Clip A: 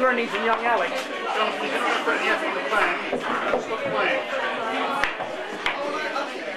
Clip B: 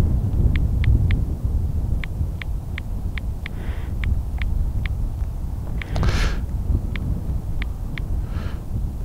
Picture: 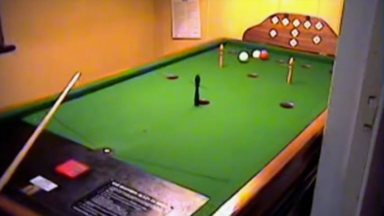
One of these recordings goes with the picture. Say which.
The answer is A